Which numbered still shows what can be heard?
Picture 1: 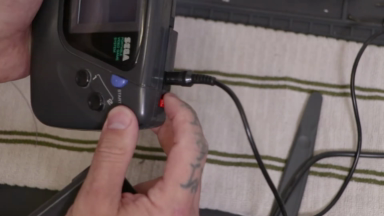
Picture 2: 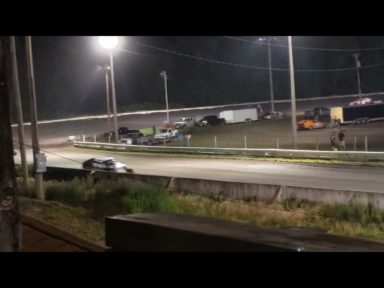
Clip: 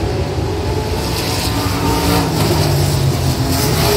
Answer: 2